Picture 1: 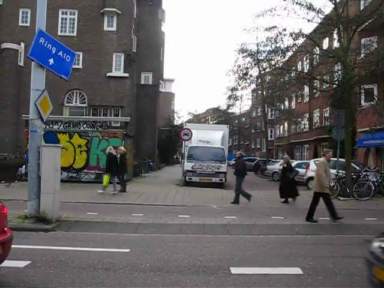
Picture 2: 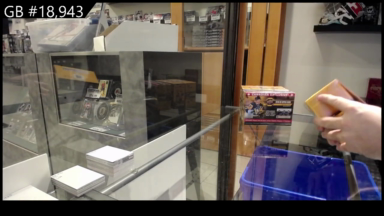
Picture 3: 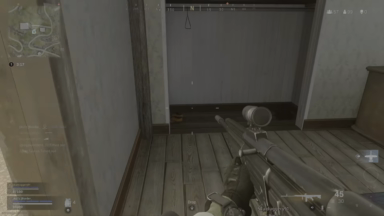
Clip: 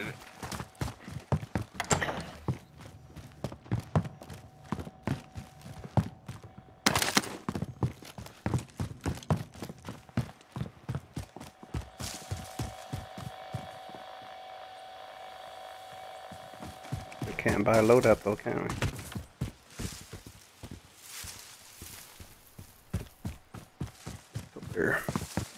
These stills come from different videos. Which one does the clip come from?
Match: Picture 3